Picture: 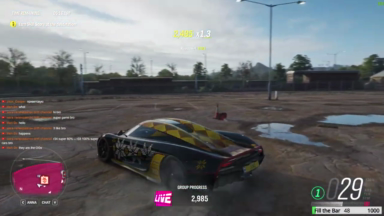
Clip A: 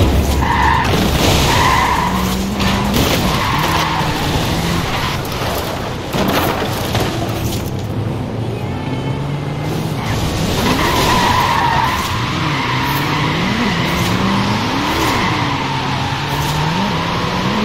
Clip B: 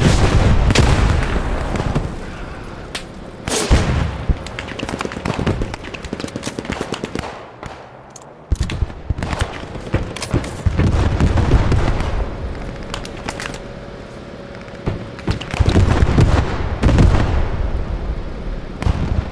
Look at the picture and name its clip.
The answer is A